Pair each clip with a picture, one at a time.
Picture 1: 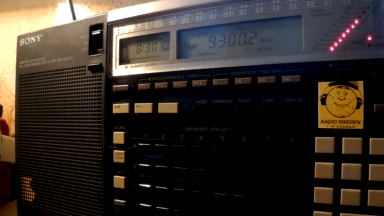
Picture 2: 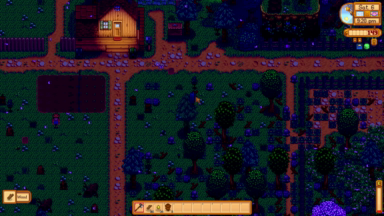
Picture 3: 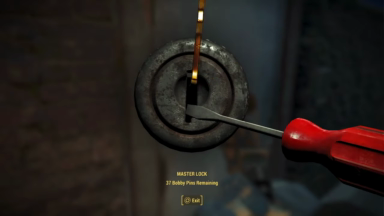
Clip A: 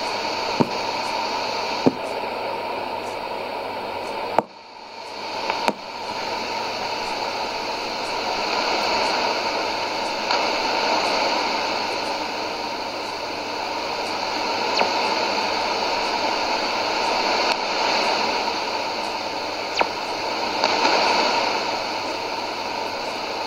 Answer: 1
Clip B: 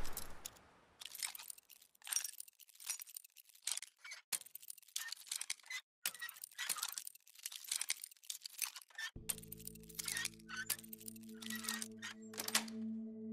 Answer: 3